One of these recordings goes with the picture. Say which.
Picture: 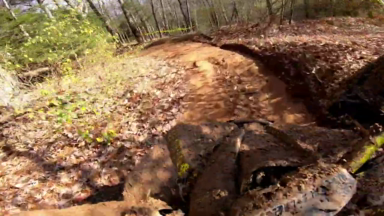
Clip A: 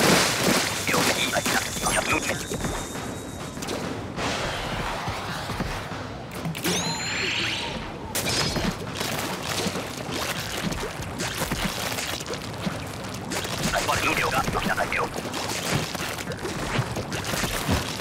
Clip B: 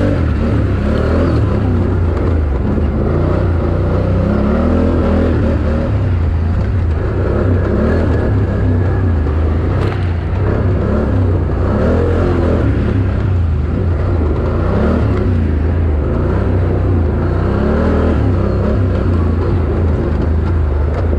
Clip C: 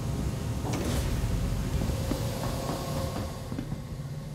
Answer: B